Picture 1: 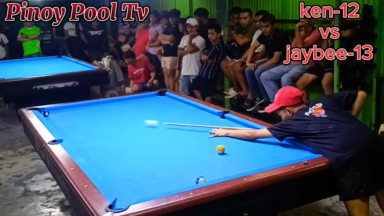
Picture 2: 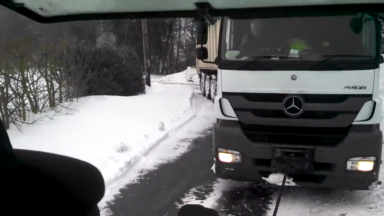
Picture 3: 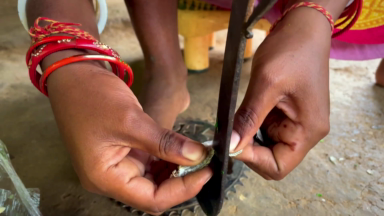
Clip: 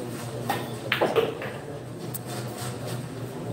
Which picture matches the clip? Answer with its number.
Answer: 1